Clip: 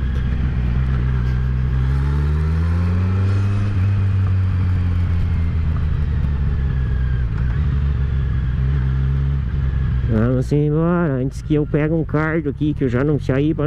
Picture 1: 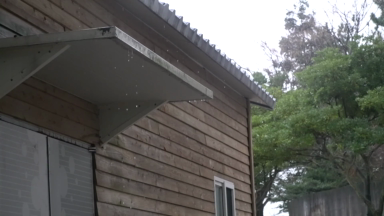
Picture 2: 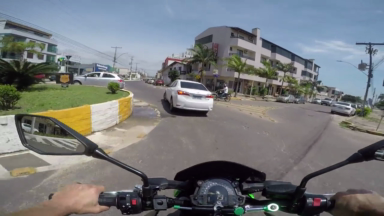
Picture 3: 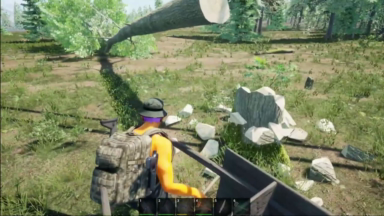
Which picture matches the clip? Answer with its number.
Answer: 2